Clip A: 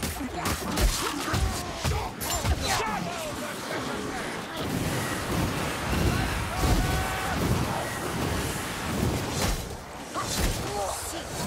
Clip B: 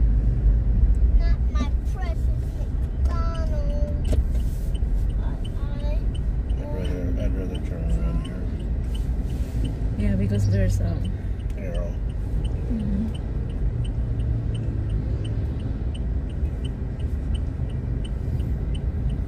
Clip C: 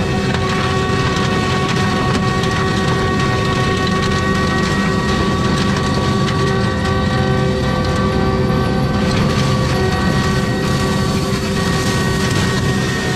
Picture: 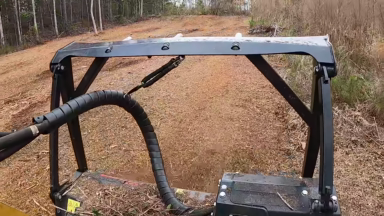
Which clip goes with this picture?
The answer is C